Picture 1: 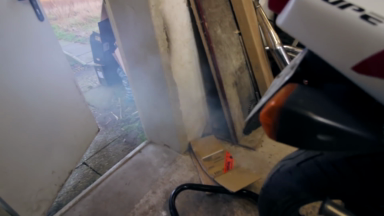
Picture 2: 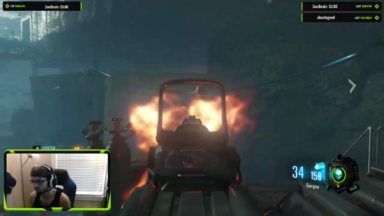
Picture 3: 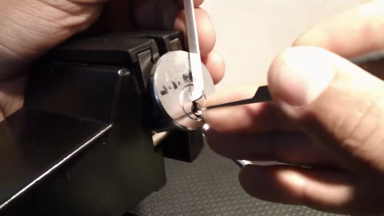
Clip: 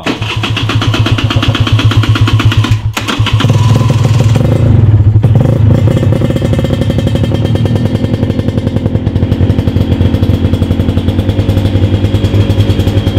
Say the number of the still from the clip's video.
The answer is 1